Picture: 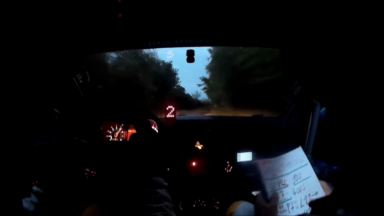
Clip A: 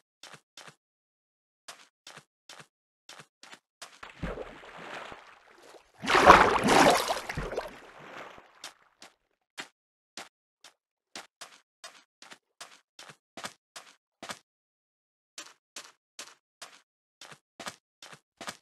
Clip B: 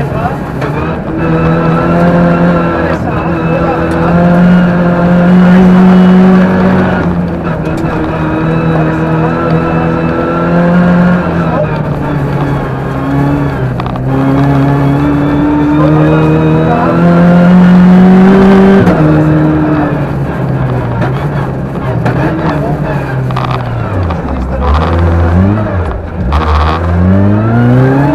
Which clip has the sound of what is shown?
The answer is B